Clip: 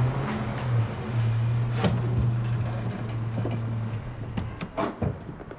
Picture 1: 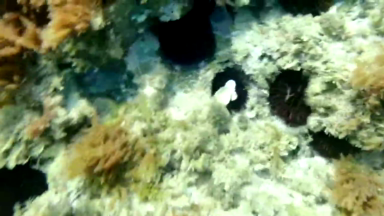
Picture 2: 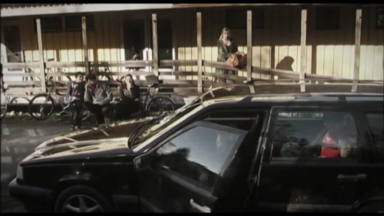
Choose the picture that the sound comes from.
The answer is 2